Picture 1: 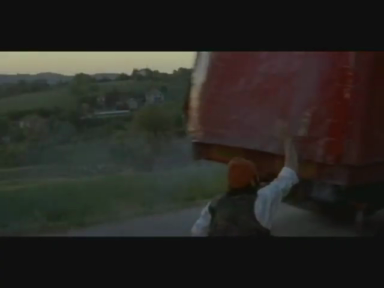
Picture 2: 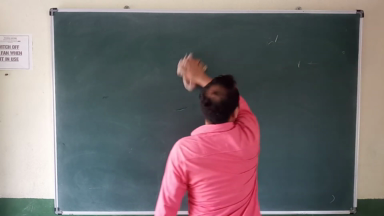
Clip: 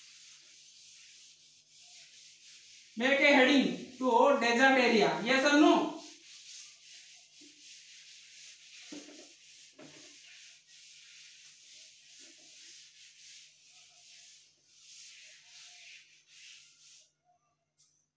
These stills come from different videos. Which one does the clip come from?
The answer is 2